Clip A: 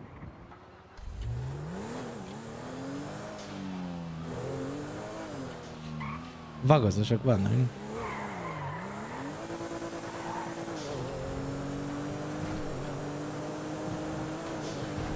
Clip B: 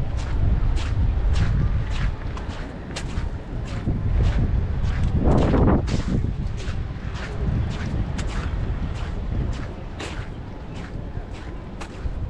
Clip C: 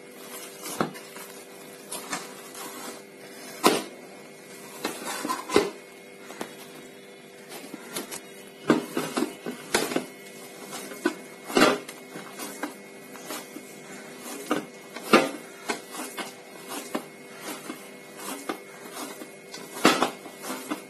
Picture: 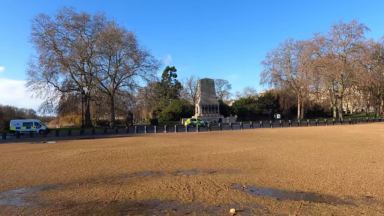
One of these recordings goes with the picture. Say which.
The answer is B